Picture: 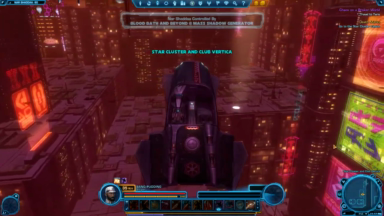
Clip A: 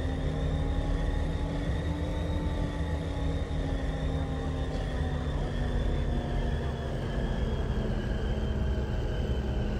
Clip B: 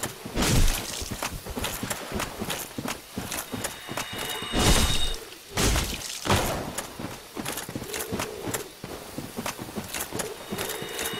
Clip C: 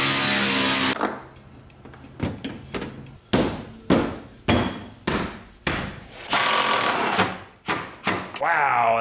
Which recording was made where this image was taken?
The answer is A